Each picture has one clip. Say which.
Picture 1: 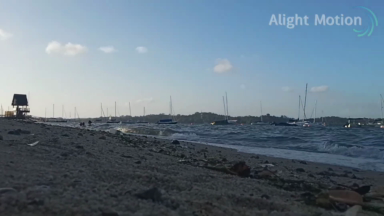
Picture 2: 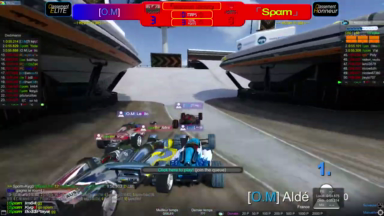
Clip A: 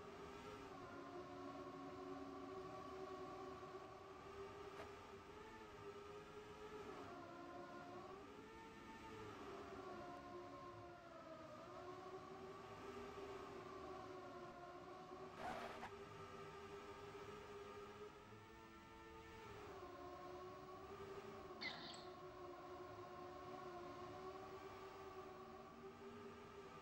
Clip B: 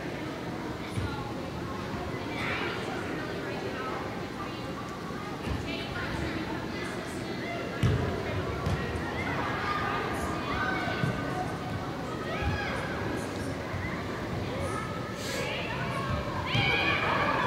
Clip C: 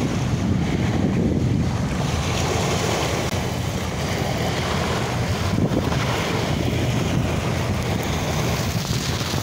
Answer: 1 C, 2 A